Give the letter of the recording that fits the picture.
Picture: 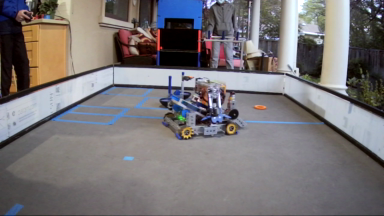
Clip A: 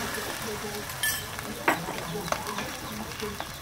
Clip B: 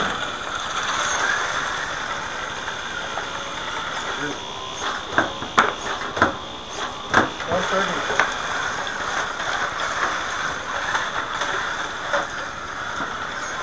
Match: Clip B